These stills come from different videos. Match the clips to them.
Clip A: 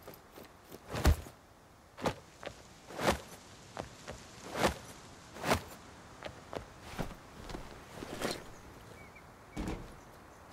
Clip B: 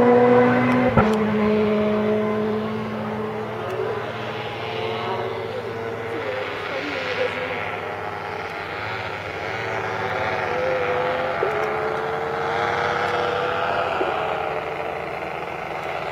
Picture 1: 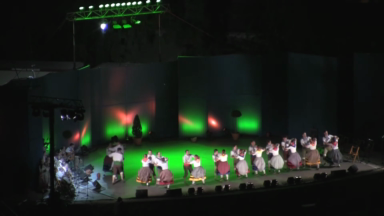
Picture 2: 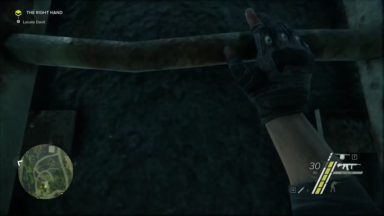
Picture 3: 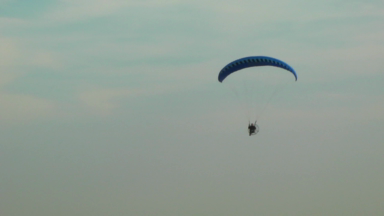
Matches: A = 2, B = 3